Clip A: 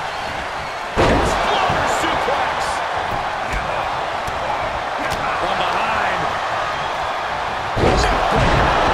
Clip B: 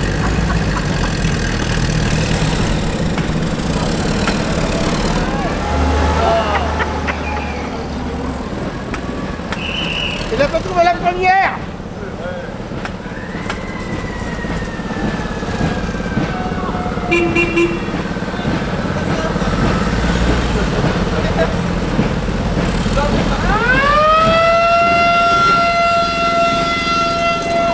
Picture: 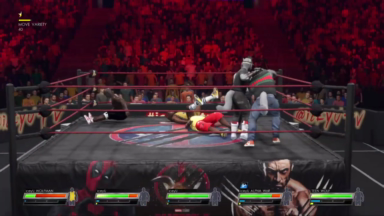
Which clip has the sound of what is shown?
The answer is A